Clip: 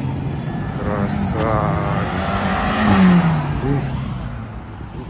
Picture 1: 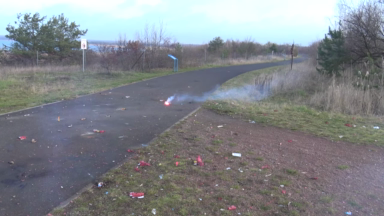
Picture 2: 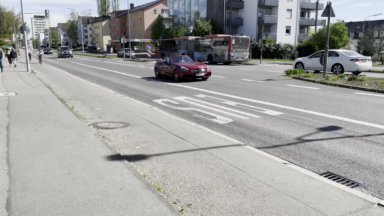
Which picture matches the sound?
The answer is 2